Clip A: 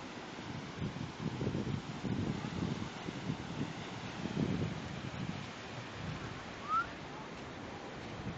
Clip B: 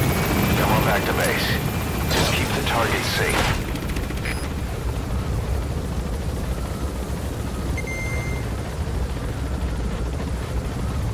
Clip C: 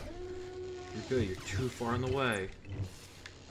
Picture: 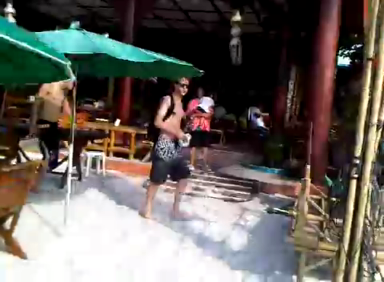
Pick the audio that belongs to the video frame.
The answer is A